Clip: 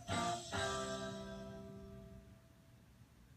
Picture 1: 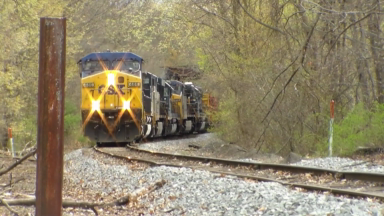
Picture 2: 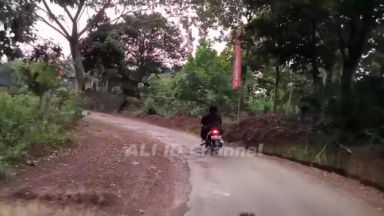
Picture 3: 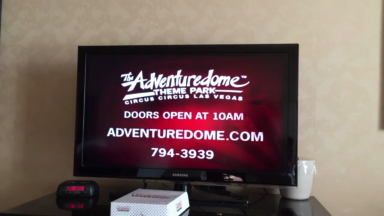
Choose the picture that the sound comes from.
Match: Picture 3